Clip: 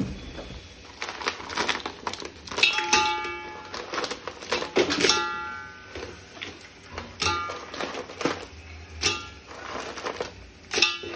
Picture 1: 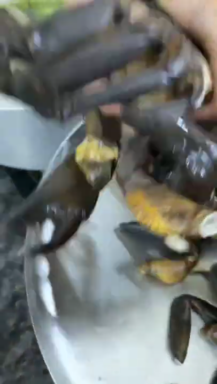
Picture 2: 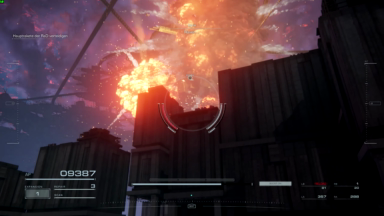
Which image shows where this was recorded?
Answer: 1